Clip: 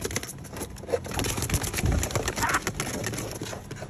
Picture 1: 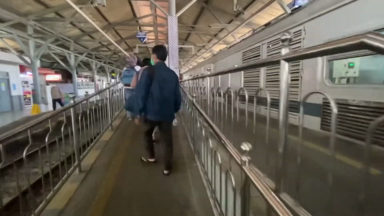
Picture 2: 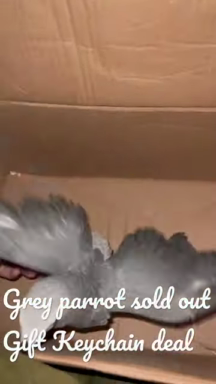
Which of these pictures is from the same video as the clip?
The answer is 2